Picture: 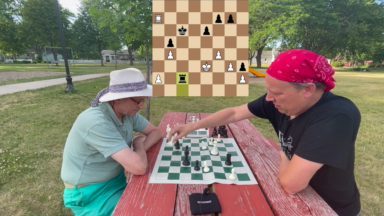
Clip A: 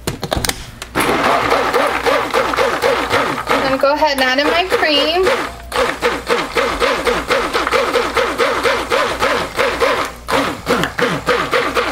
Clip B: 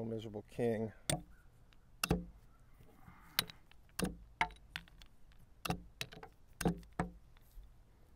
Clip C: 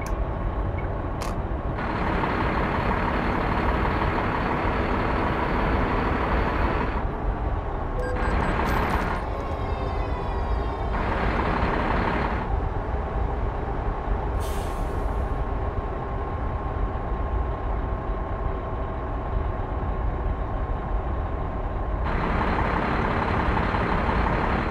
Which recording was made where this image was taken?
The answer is B